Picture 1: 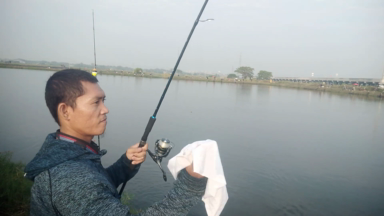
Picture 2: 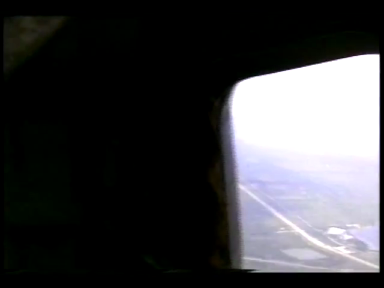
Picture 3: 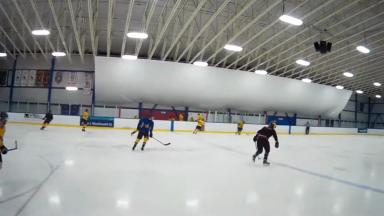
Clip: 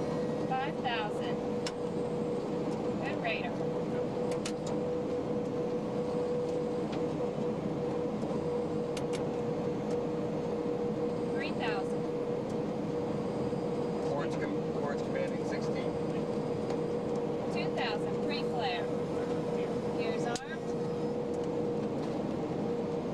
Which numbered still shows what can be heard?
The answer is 2